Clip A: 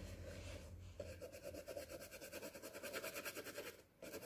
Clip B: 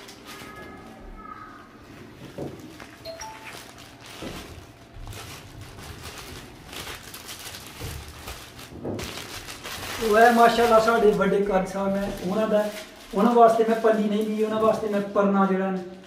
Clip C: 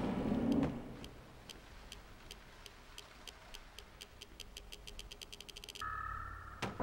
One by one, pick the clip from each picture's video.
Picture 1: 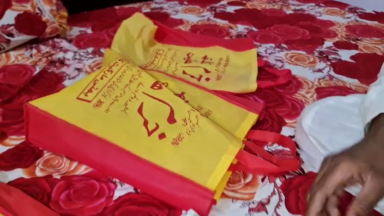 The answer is B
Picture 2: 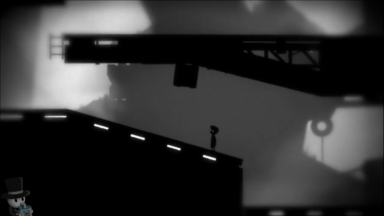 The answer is C